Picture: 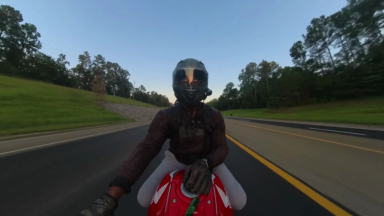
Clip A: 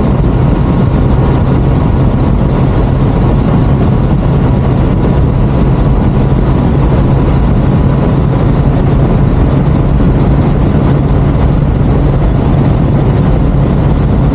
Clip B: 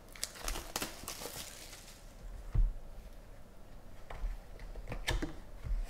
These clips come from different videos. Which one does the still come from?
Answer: A